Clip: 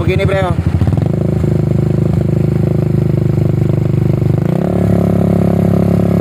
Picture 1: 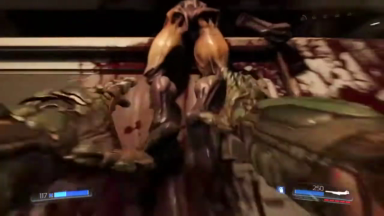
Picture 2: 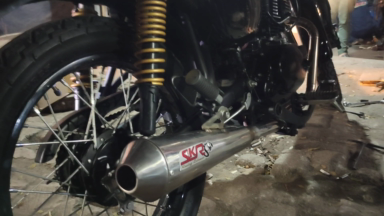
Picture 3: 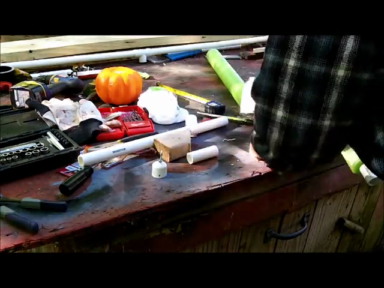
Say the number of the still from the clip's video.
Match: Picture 2